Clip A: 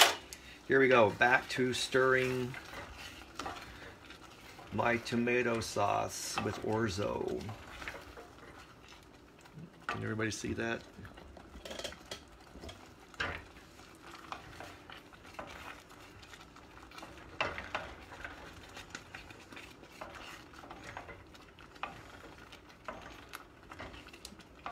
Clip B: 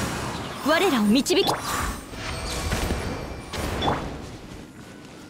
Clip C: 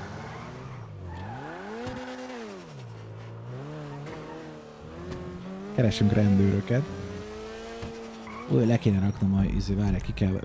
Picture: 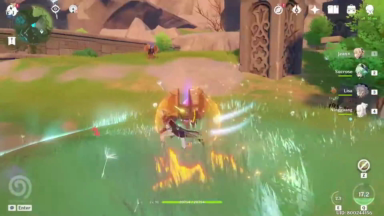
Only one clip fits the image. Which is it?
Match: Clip B